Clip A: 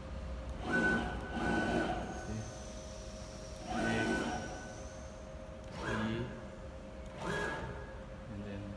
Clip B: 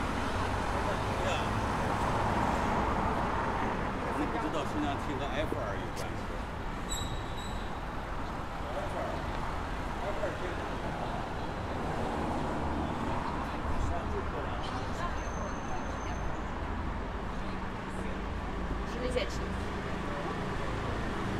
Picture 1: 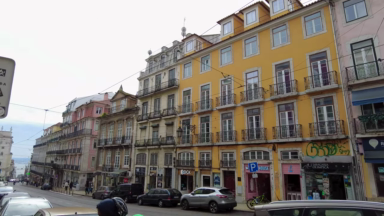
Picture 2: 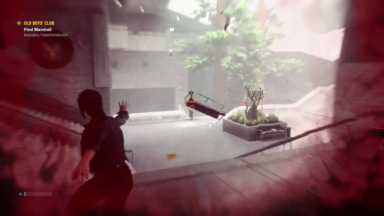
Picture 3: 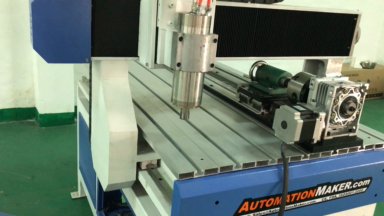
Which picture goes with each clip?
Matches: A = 3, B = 1